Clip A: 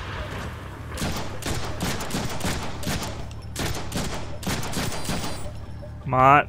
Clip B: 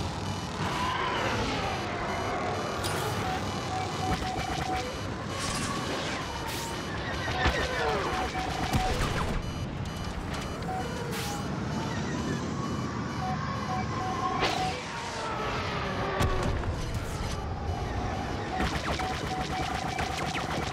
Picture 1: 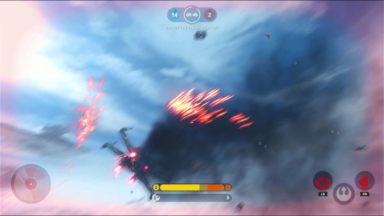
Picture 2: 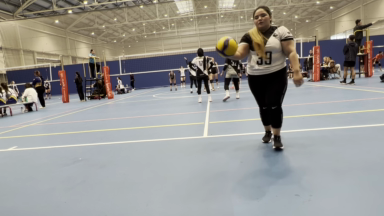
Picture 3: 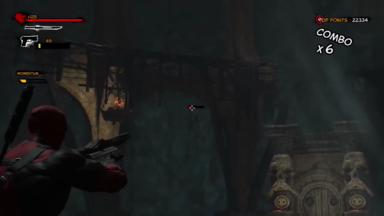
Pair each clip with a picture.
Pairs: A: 3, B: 1